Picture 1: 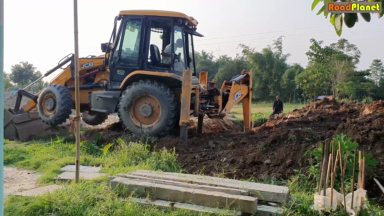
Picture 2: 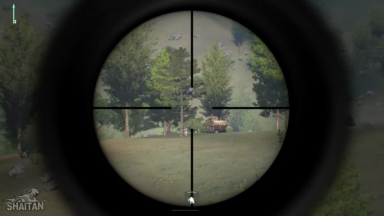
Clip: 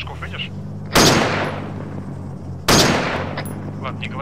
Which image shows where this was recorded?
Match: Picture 2